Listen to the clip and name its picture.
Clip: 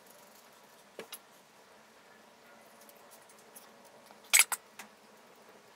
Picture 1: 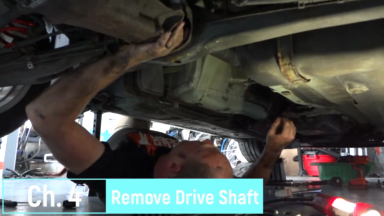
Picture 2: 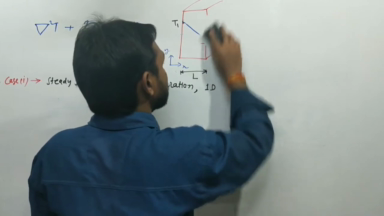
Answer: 1